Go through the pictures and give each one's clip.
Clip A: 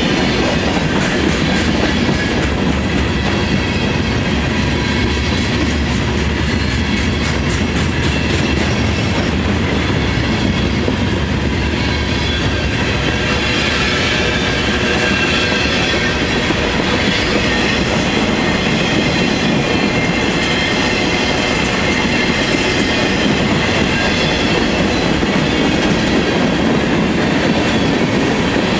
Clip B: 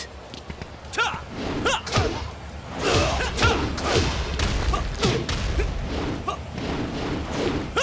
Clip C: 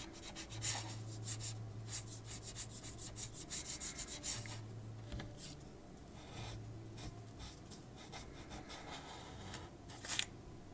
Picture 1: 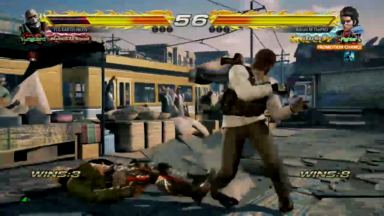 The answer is B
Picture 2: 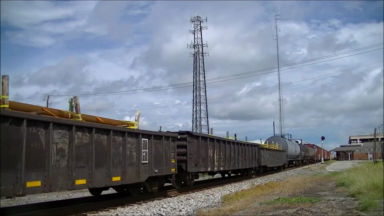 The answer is A